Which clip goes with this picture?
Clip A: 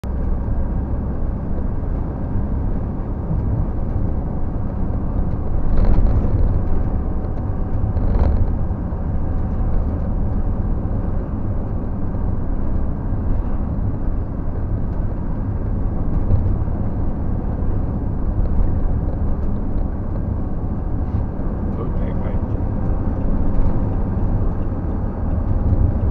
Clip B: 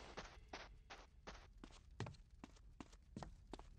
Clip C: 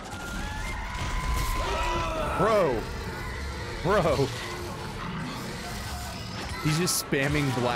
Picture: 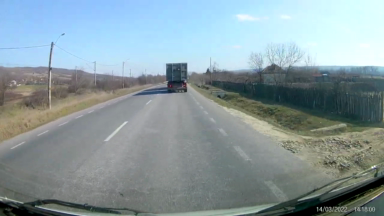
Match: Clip A